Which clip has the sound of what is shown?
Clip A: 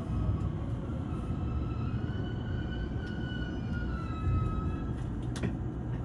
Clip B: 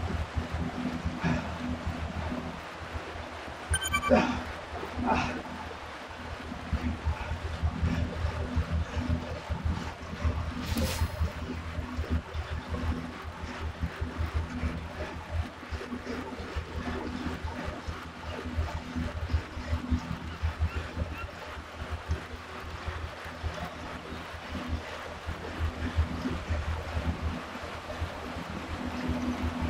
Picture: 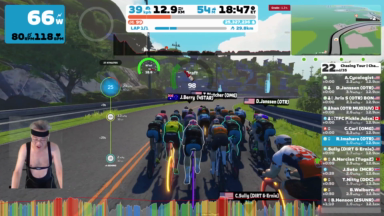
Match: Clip B